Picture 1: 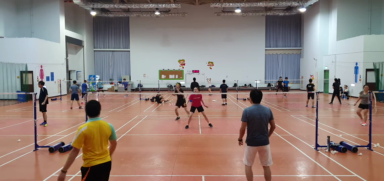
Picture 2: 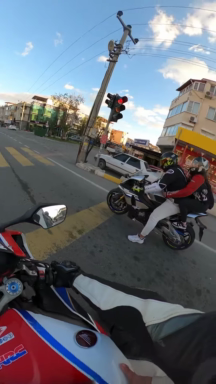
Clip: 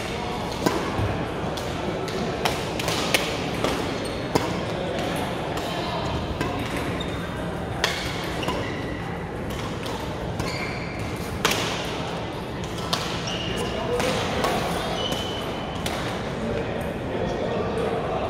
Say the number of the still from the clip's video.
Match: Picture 1